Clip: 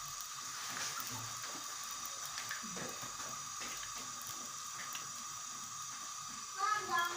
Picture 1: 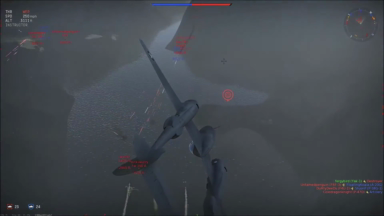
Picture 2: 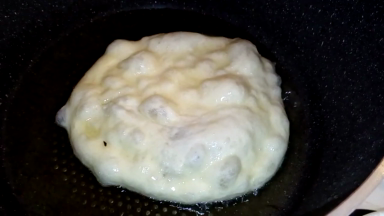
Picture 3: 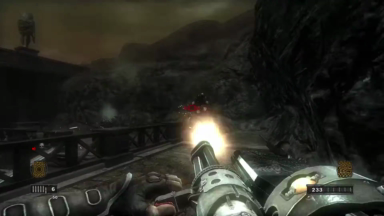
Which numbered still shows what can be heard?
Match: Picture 2